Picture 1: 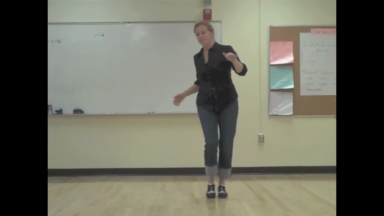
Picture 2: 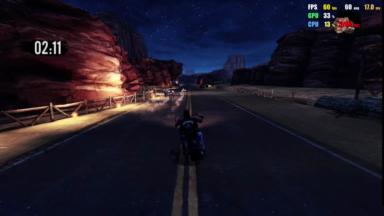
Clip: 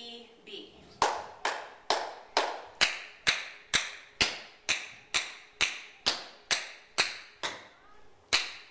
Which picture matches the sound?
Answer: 1